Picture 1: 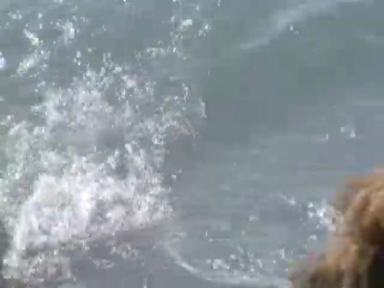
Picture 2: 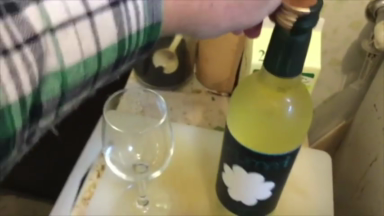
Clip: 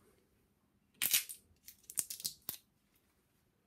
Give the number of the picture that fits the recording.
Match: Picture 2